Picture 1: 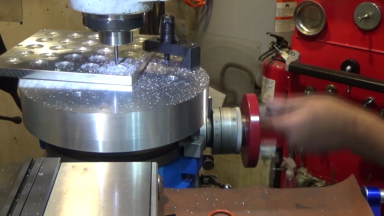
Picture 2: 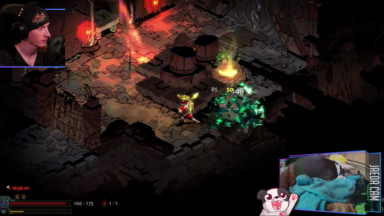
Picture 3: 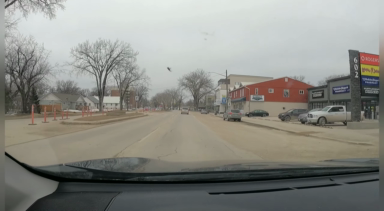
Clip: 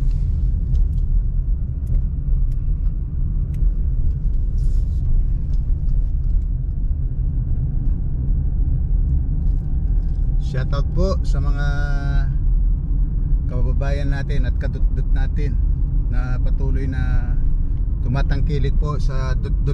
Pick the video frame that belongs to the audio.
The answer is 3